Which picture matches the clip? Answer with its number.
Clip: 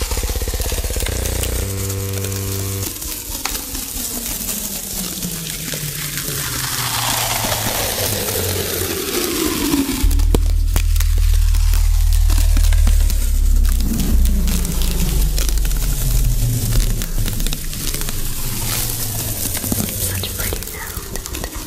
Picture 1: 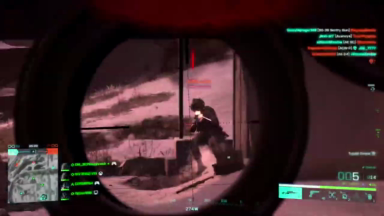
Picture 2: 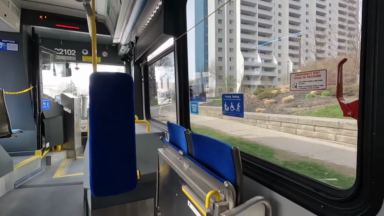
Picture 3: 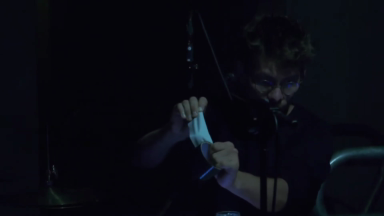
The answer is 3